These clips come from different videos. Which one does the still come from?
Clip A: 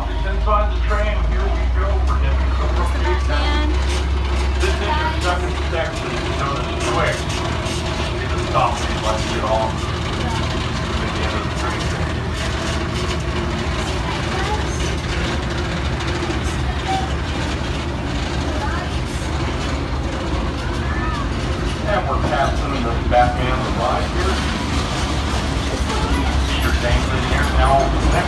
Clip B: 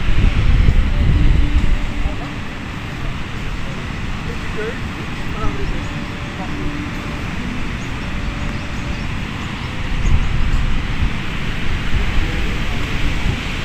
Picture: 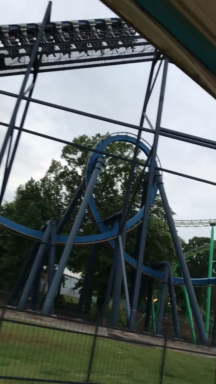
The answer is A